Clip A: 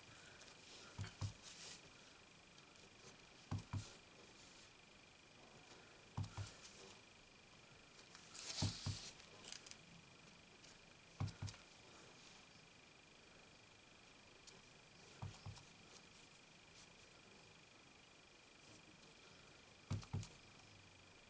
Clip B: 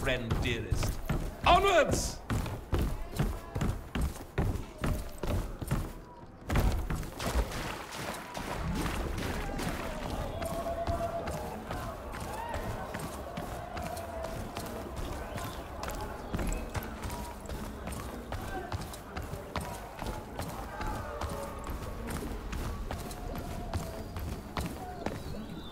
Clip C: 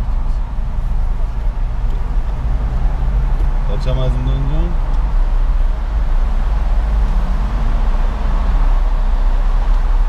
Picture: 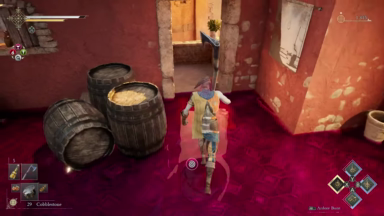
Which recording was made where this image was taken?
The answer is B